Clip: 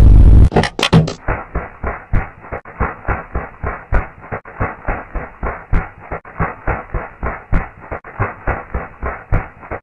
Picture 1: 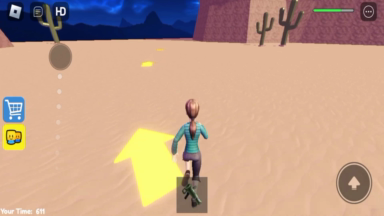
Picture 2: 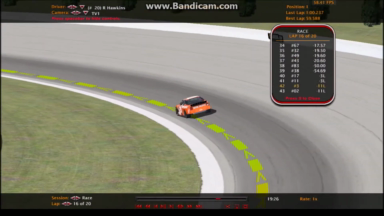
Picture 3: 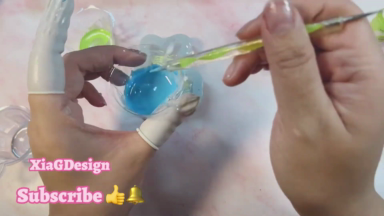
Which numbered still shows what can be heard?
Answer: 1